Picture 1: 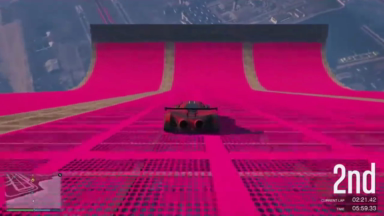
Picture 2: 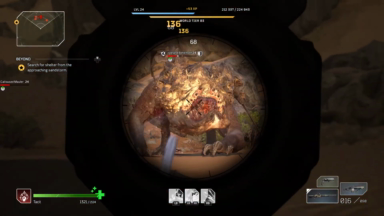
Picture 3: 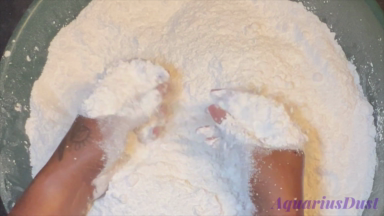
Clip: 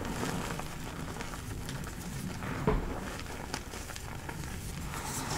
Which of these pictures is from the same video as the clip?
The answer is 3